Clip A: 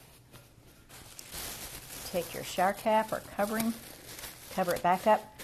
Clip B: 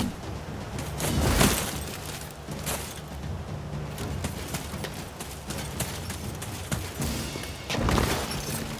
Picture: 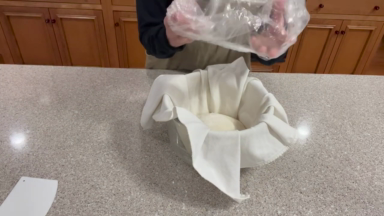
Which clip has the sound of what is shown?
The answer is A